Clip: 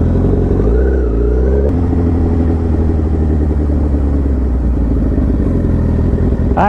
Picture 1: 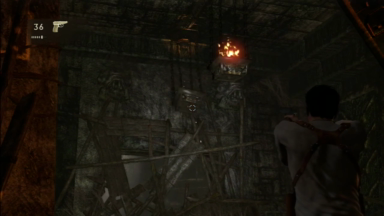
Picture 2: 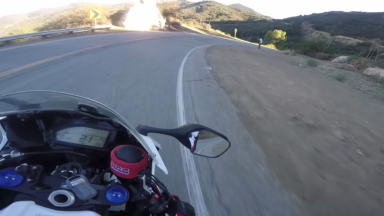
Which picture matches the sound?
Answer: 2